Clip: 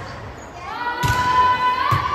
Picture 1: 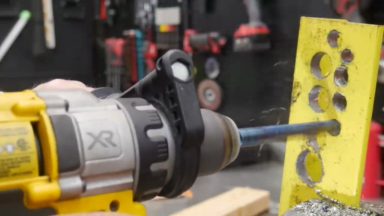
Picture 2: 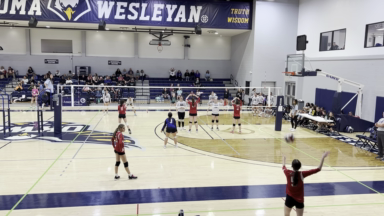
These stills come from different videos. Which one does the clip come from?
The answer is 2